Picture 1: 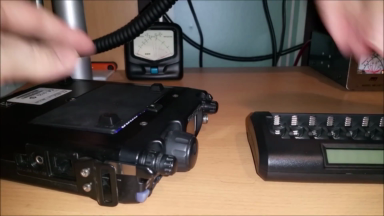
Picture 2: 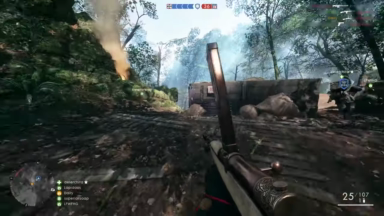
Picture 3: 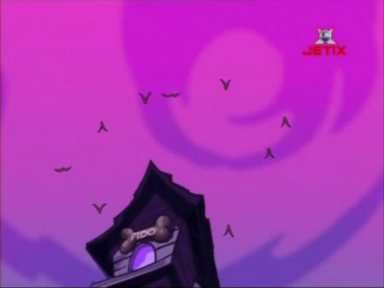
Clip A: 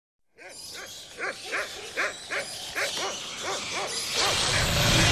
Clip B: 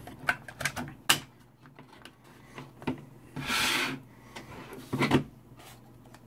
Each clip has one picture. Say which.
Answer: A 3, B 1